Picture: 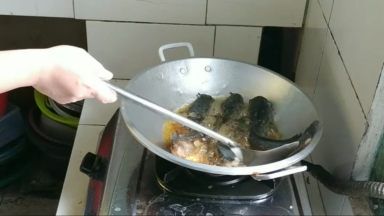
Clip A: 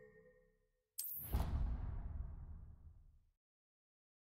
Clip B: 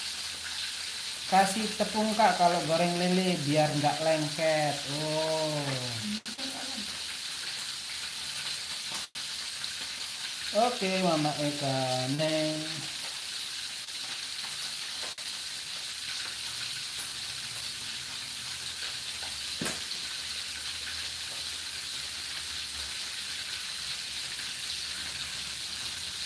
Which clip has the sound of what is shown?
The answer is B